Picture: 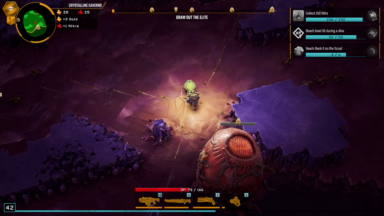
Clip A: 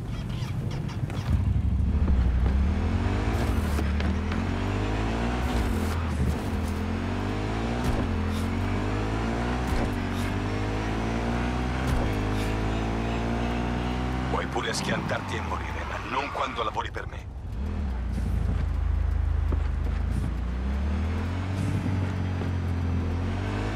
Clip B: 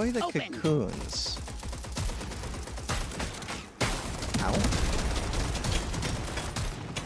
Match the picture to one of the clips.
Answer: B